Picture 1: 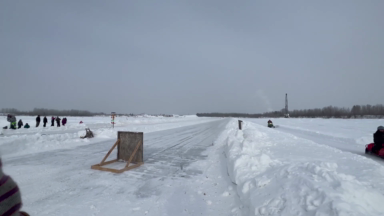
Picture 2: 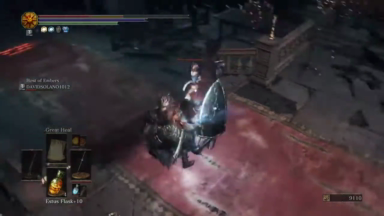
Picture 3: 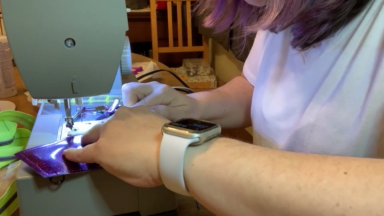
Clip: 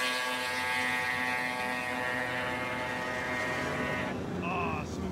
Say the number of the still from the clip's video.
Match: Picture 1